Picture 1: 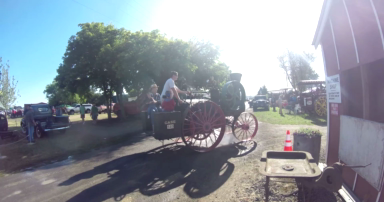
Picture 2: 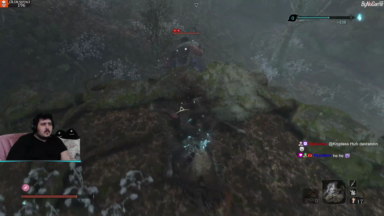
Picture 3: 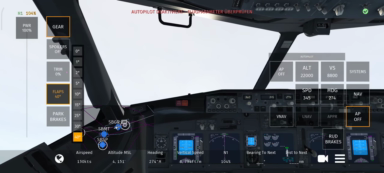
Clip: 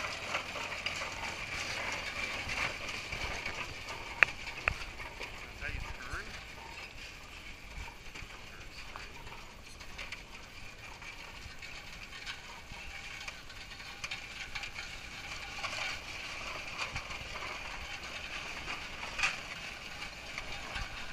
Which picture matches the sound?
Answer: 1